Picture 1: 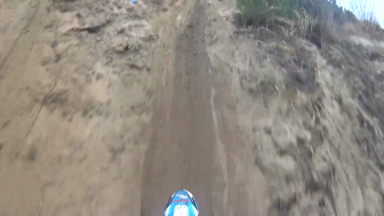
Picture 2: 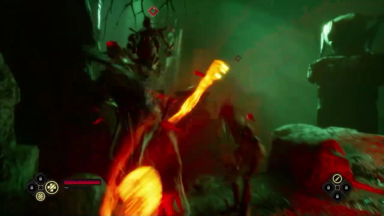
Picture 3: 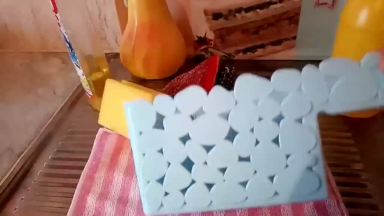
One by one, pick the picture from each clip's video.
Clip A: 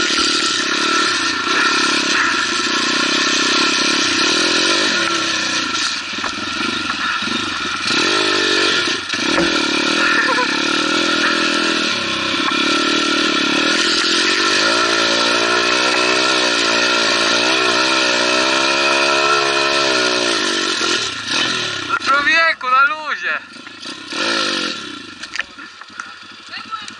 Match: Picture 1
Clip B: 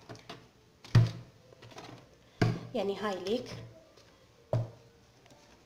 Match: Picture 3